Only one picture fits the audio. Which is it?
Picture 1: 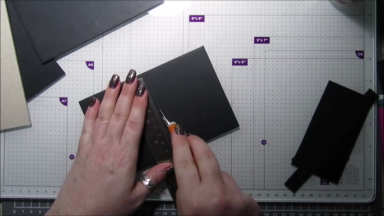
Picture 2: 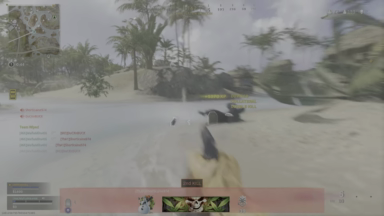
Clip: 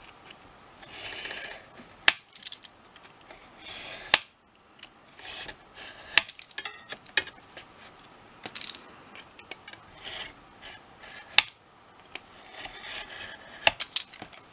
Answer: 1